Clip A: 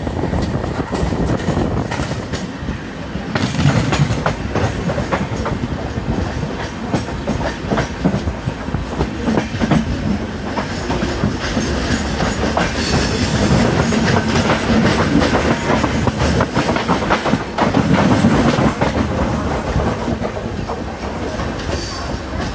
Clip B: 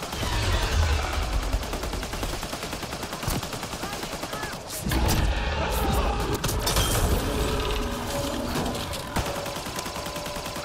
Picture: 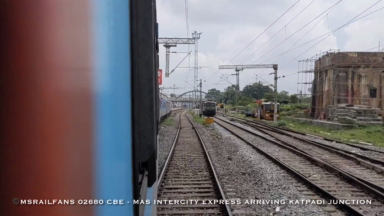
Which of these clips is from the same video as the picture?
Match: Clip A